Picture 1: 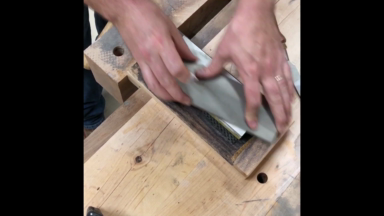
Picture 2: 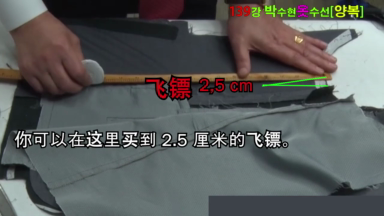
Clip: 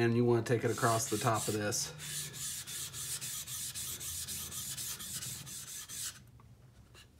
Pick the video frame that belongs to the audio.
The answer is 1